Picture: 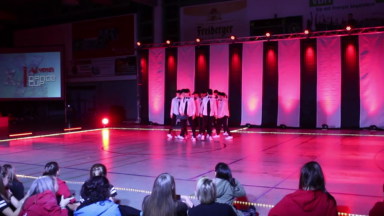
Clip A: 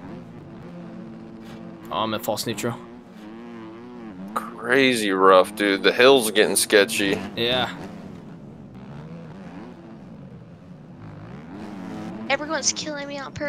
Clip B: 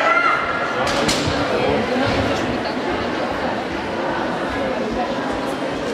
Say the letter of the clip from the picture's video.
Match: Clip B